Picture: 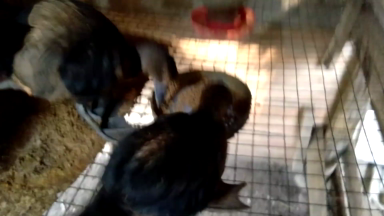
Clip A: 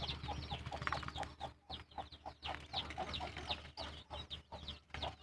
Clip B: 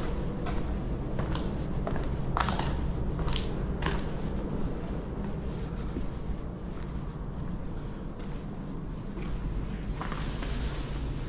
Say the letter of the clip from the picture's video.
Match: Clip A